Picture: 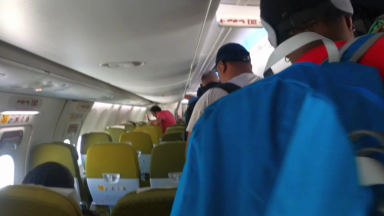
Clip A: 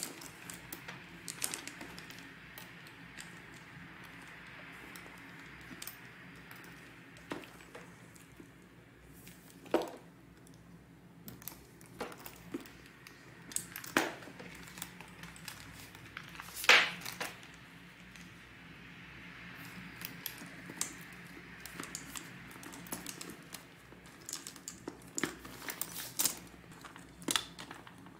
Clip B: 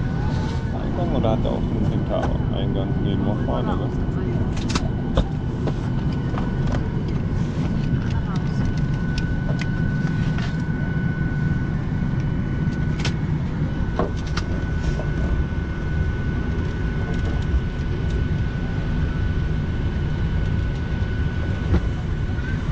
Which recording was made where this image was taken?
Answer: B